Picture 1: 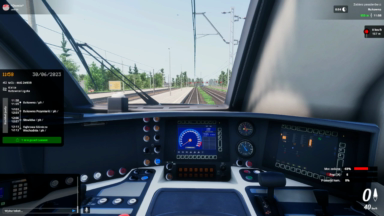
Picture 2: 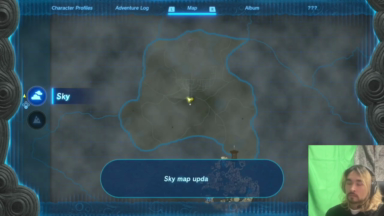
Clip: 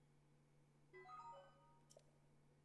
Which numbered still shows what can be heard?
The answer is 2